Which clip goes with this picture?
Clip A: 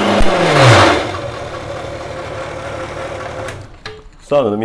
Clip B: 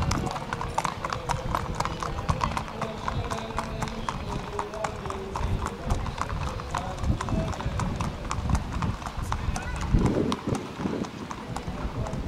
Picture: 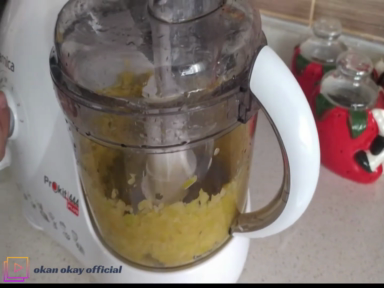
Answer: A